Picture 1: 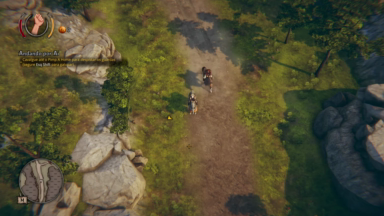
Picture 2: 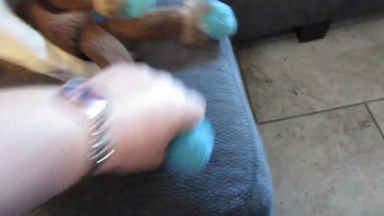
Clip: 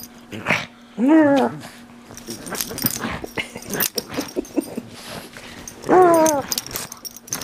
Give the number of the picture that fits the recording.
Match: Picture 2